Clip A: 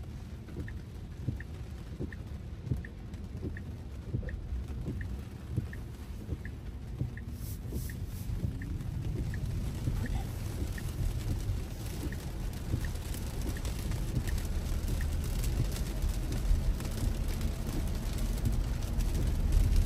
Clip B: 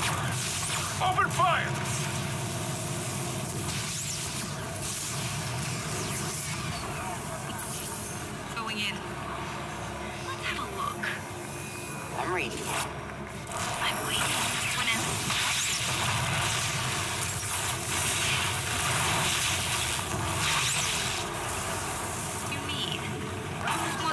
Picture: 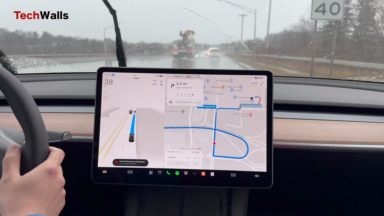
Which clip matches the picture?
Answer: A